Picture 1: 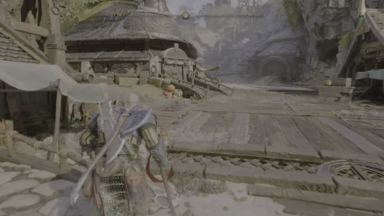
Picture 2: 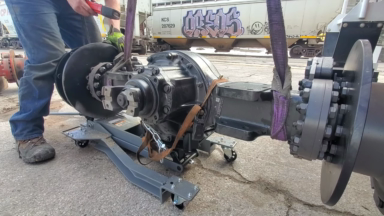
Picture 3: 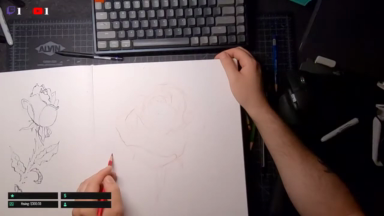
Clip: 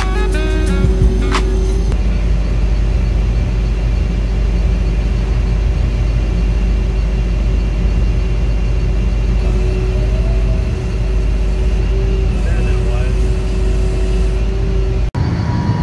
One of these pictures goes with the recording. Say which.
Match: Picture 2